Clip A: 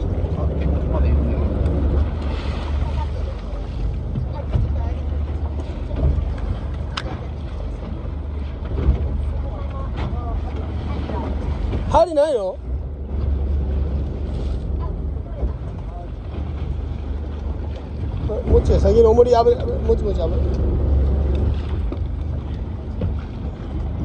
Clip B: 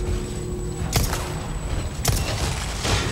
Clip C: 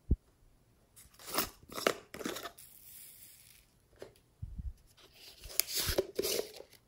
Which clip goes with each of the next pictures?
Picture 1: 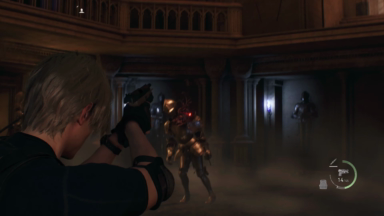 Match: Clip B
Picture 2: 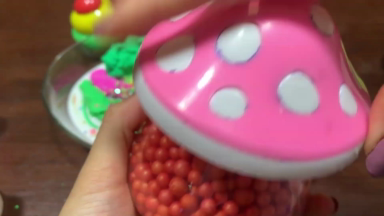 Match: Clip C